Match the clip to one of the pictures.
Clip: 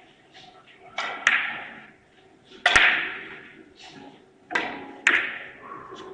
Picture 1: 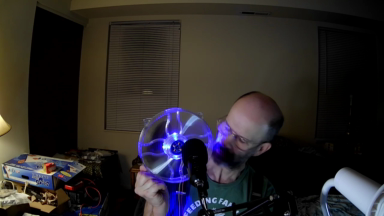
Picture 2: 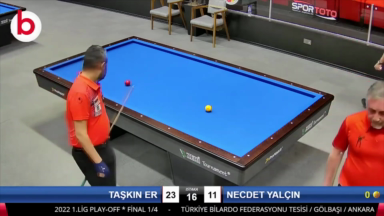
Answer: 2